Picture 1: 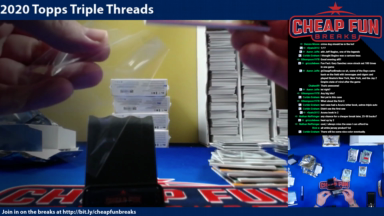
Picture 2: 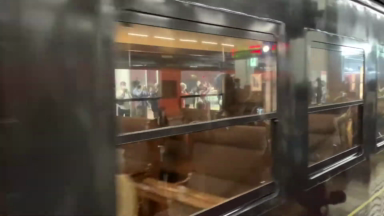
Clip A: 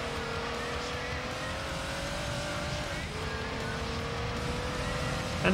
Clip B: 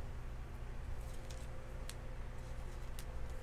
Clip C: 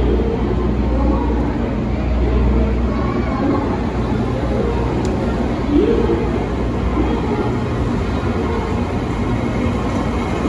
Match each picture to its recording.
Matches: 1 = B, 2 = C